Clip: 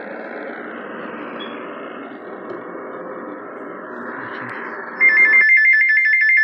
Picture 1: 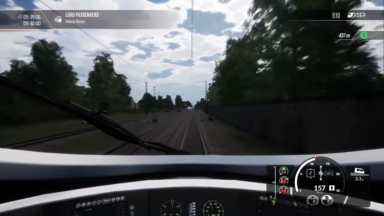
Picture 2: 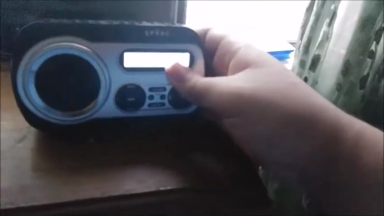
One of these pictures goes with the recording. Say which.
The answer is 2